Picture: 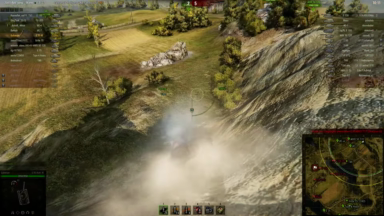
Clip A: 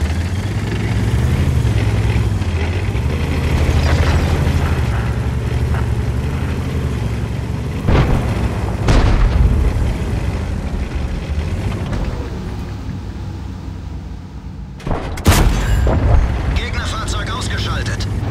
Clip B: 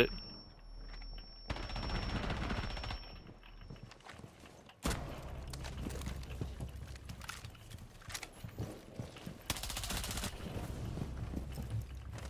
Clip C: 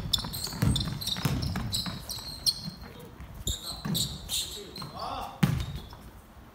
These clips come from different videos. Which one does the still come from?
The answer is A